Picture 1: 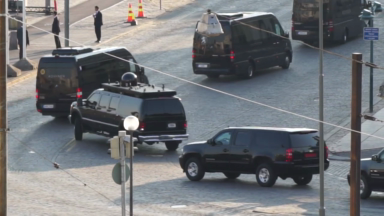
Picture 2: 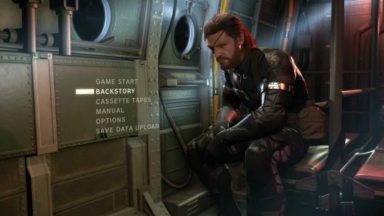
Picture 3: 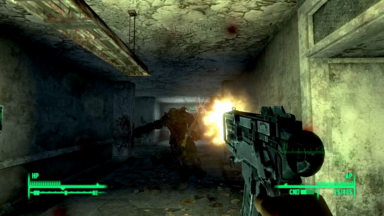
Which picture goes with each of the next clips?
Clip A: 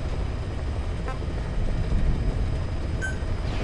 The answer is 2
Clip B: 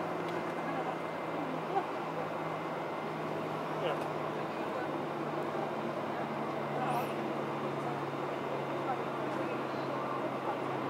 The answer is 1